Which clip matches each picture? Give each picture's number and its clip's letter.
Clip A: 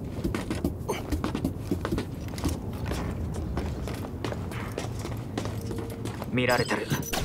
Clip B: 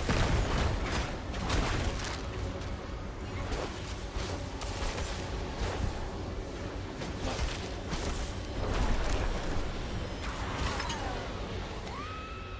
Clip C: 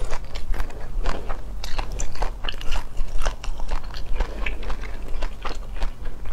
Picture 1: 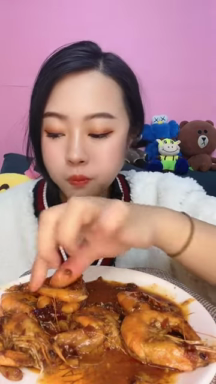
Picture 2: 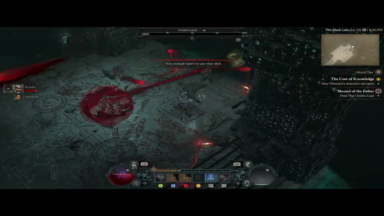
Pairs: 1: C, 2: B